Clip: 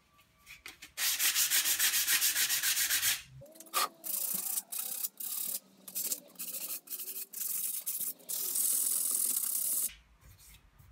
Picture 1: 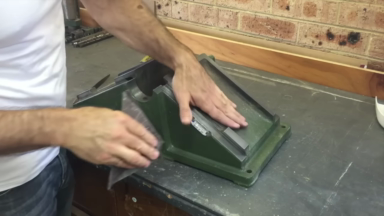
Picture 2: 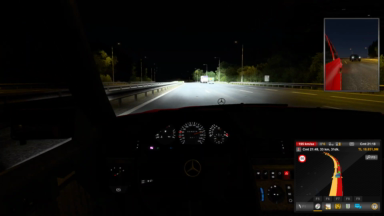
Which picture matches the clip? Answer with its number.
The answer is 1